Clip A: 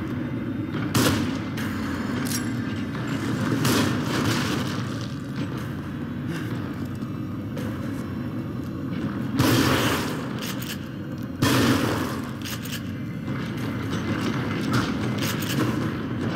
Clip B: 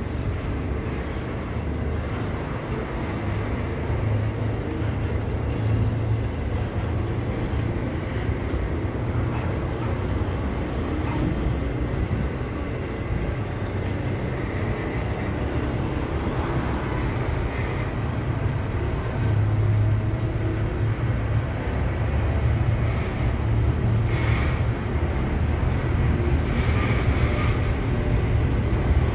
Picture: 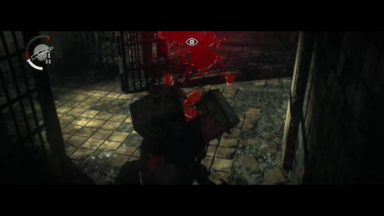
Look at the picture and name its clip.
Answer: A